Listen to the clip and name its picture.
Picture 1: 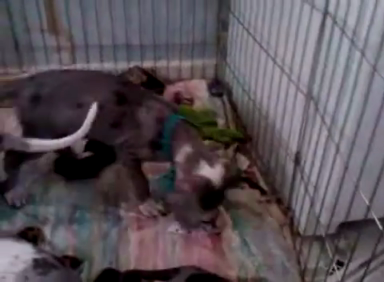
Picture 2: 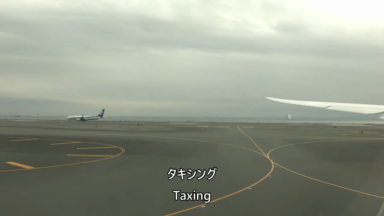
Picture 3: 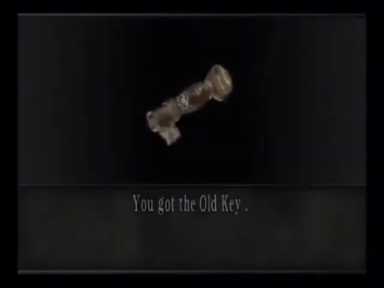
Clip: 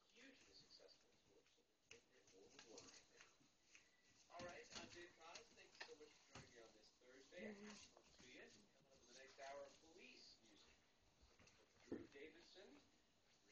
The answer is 1